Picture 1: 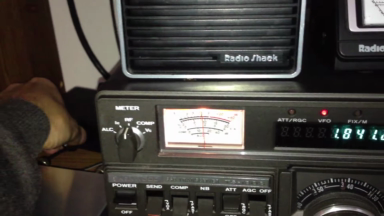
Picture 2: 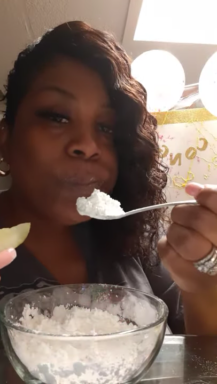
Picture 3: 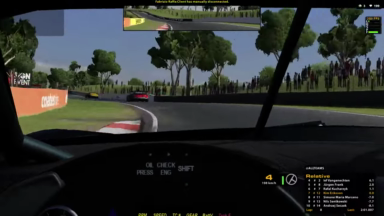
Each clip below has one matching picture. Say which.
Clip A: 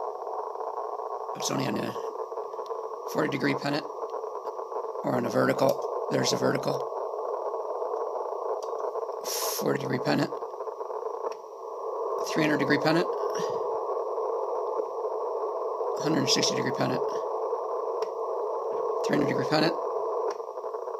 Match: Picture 1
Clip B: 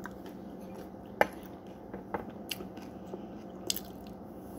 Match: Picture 2